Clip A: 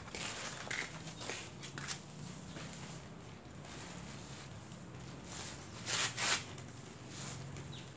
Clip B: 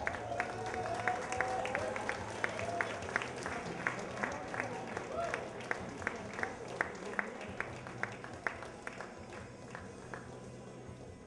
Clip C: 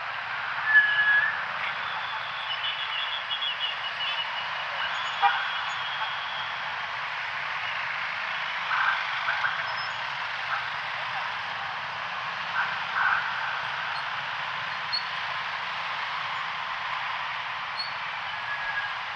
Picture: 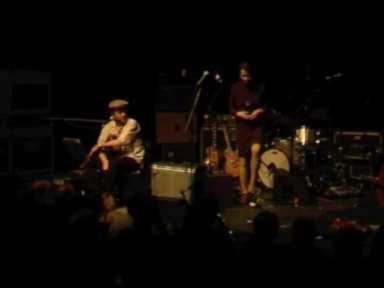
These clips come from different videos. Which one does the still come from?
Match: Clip B